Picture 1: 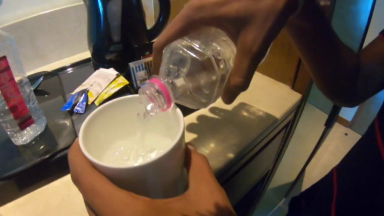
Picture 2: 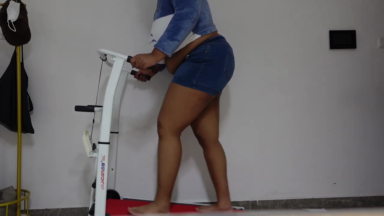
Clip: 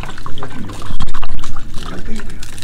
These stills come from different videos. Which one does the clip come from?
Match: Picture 1